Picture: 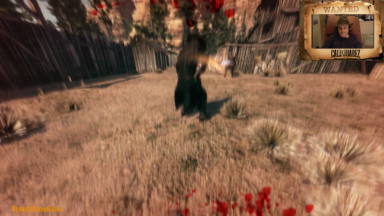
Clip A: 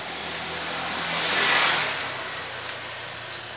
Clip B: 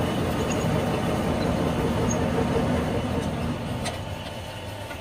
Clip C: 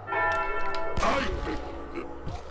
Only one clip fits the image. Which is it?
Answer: C